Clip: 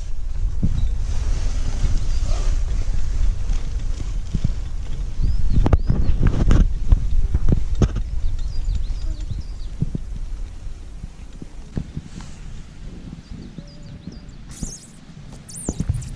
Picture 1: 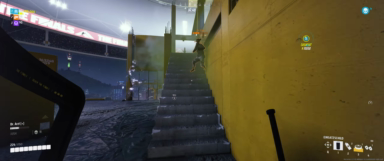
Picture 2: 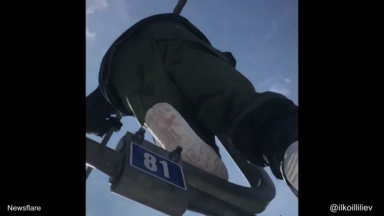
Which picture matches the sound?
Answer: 2